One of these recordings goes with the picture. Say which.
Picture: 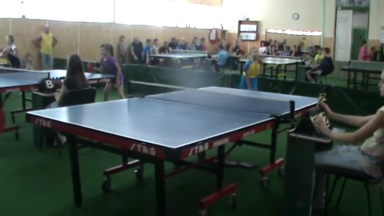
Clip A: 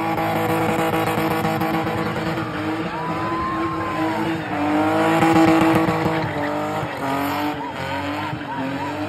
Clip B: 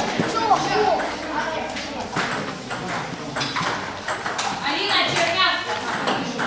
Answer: B